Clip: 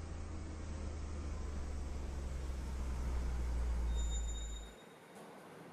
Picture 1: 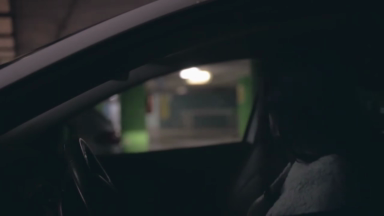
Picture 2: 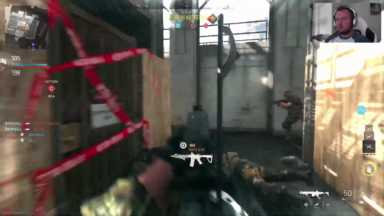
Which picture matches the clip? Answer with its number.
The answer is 1